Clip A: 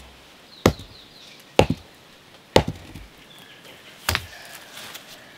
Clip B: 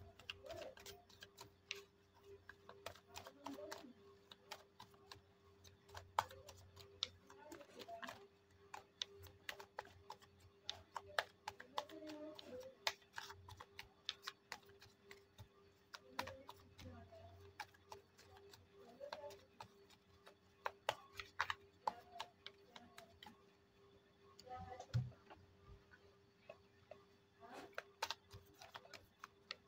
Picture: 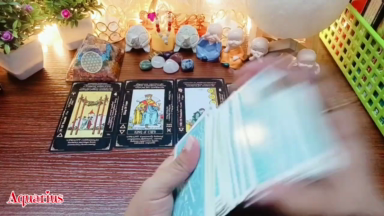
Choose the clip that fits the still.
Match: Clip B